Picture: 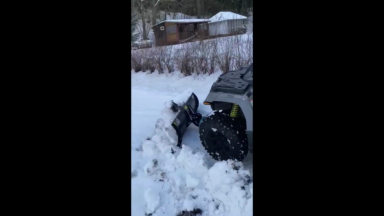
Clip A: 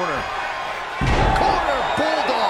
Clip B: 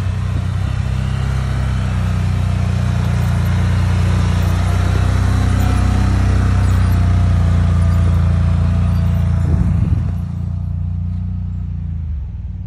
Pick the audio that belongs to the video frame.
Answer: B